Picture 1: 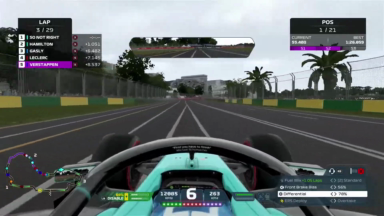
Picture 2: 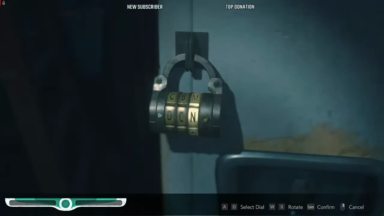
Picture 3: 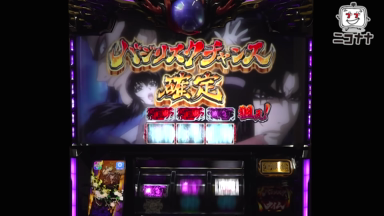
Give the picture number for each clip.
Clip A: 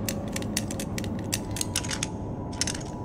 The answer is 2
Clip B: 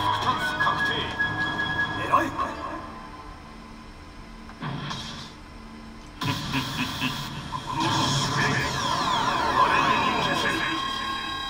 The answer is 3